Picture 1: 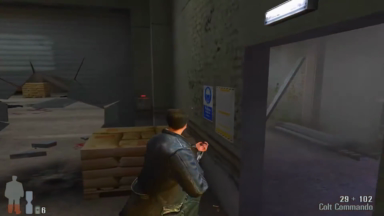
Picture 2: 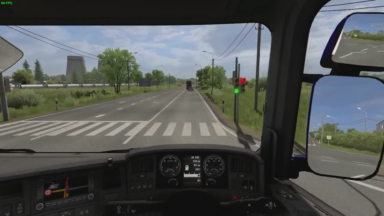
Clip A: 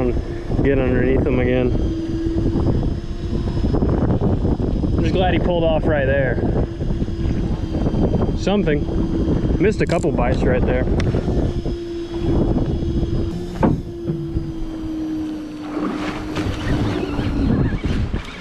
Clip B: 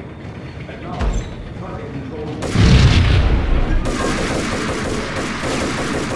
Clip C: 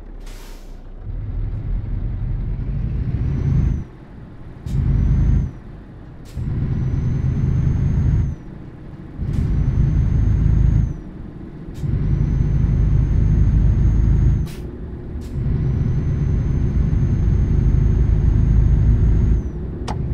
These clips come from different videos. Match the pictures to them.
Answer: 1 B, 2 C